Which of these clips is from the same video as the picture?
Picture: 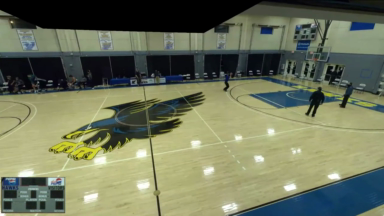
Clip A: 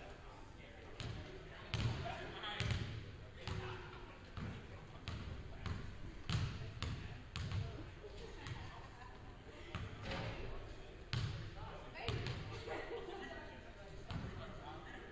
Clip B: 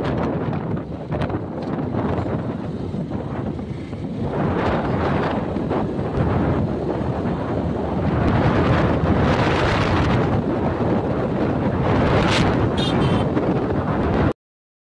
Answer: A